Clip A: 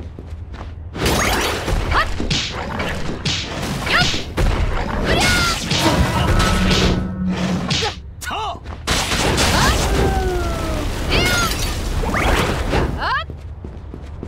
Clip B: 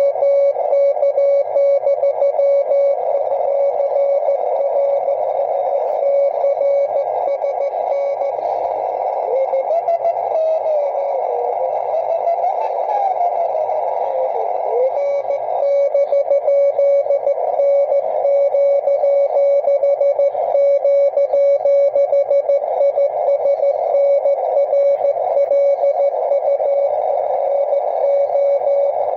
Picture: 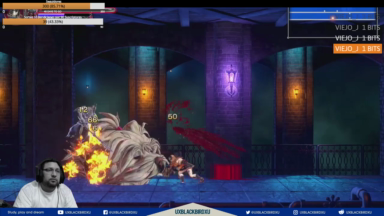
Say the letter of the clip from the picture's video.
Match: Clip A